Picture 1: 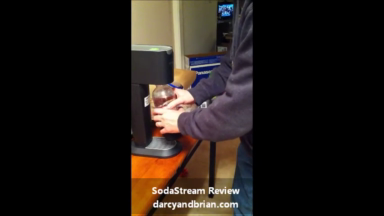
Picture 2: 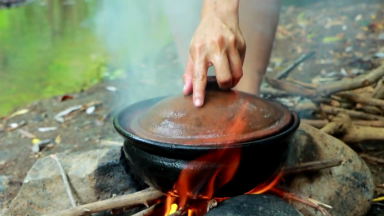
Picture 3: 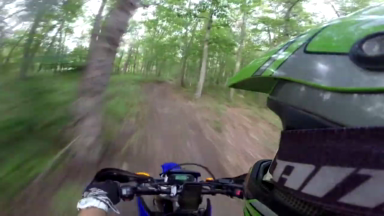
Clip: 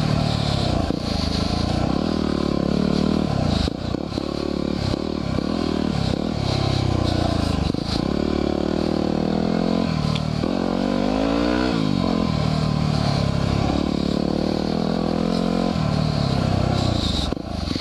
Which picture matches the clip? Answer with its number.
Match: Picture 3